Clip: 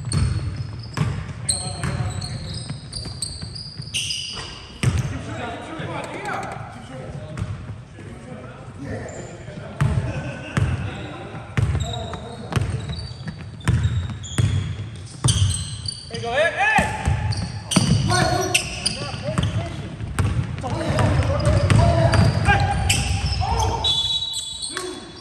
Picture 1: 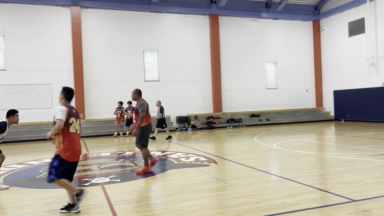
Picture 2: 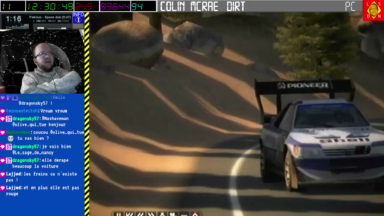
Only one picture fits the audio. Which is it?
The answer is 1